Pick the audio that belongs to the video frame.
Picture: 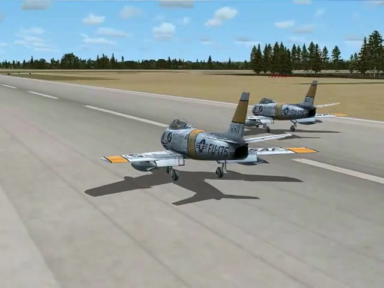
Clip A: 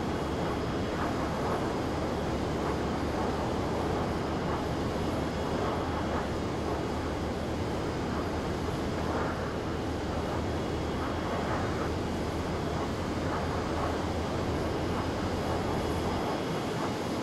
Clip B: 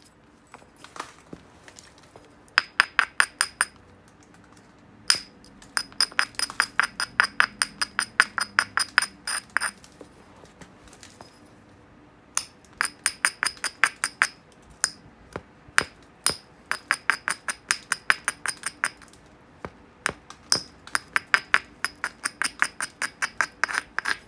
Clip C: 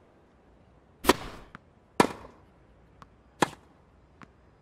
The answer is A